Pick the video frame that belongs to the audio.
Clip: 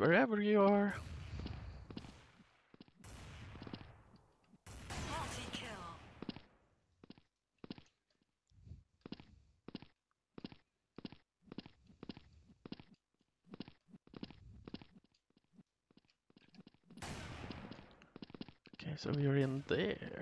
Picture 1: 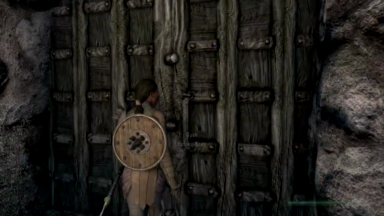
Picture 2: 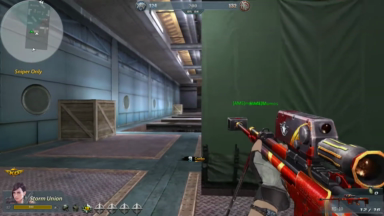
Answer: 2